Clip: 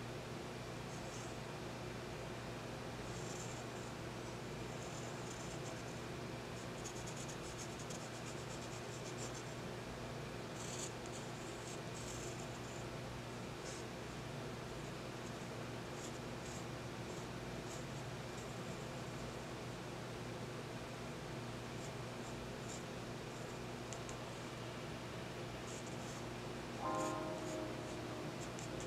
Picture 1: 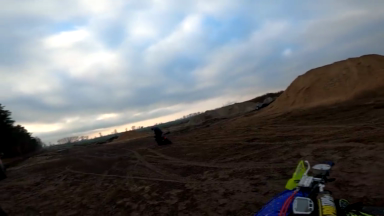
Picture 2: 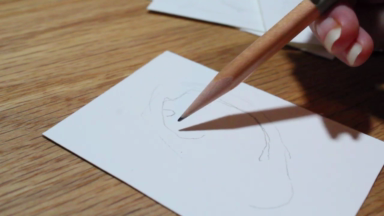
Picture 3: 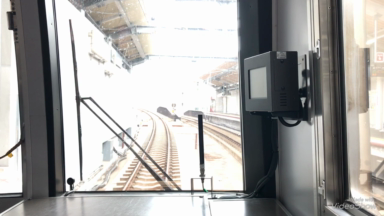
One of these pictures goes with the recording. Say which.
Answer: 2